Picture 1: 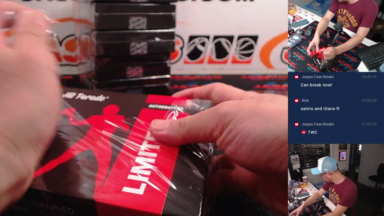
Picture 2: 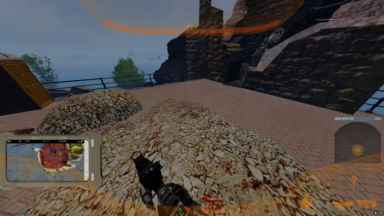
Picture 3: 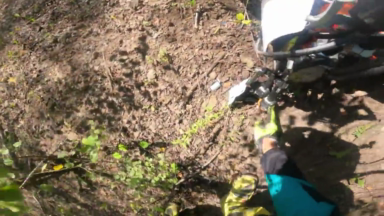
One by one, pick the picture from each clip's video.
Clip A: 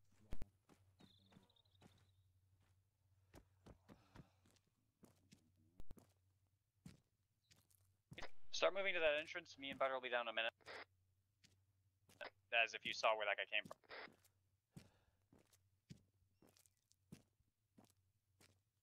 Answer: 2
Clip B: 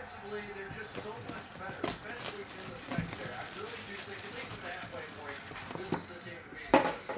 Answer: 1